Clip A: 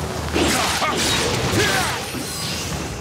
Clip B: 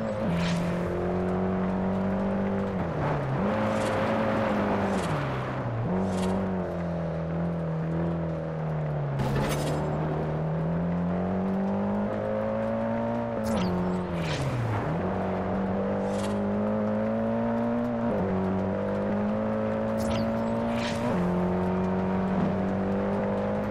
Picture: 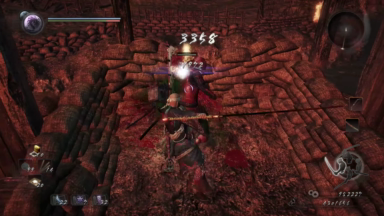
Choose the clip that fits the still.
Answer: A